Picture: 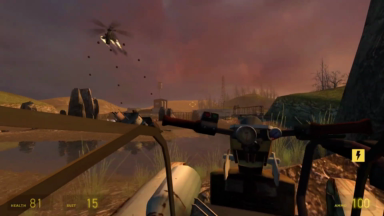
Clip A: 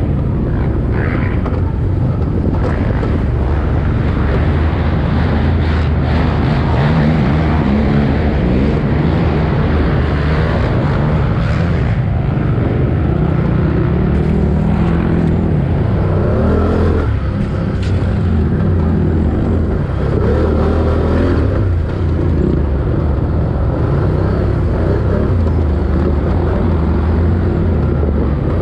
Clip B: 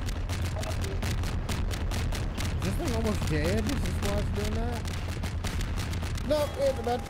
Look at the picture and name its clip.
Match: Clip B